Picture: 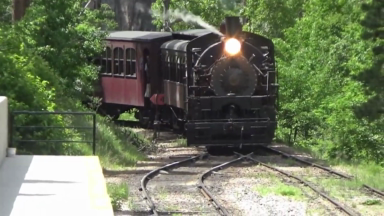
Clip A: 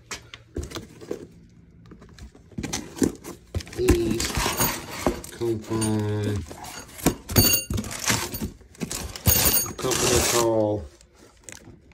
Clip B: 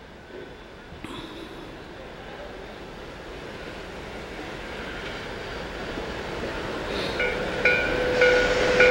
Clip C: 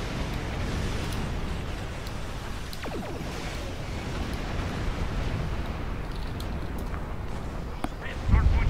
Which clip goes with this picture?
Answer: B